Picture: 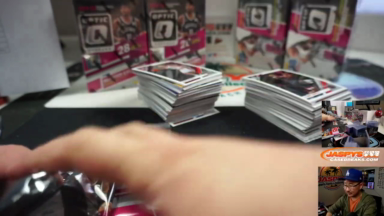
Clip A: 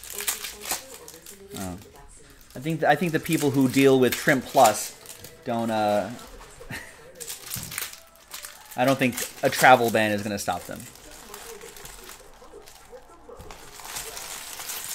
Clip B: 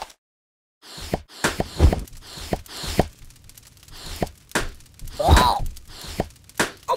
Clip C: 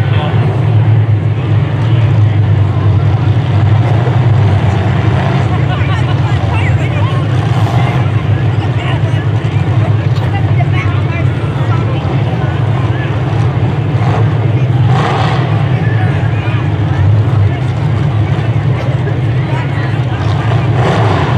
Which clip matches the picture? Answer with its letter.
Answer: A